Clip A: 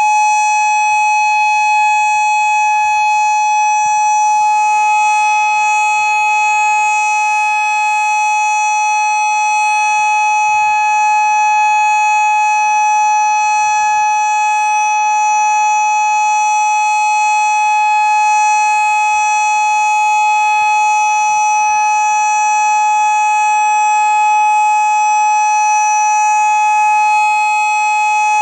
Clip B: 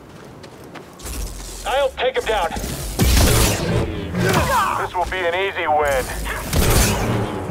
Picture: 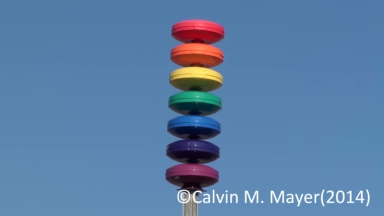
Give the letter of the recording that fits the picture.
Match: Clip A